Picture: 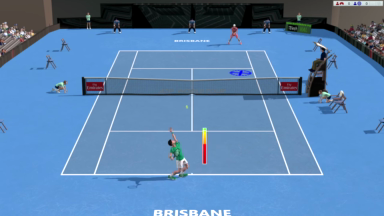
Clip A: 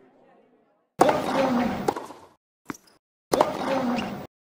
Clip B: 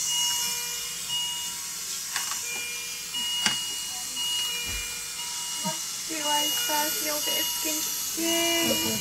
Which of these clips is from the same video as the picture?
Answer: A